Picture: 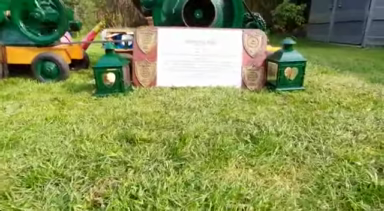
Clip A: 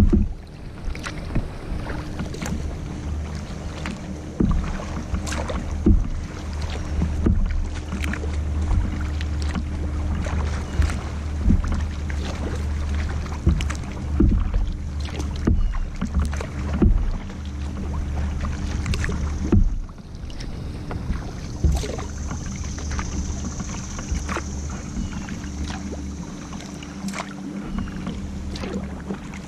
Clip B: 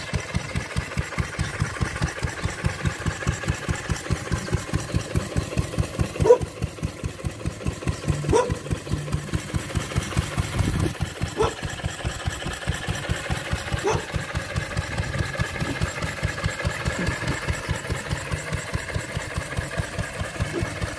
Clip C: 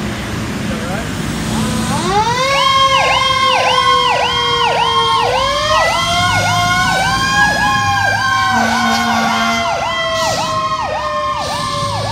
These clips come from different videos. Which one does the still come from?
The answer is B